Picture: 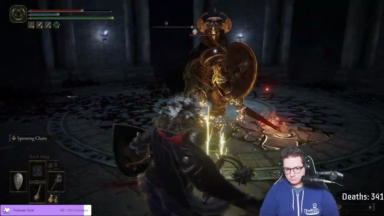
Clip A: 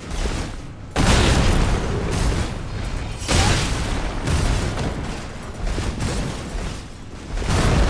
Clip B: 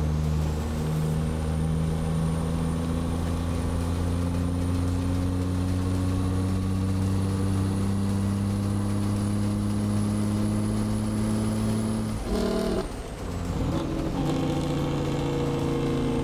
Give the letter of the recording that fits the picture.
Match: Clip A